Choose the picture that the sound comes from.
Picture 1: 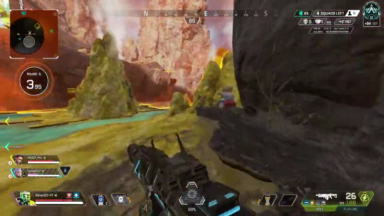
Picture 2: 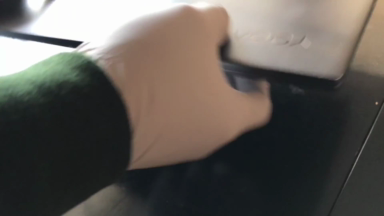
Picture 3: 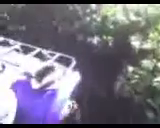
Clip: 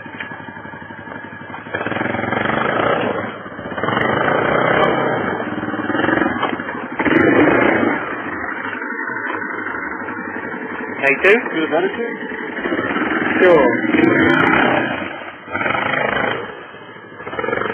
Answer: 3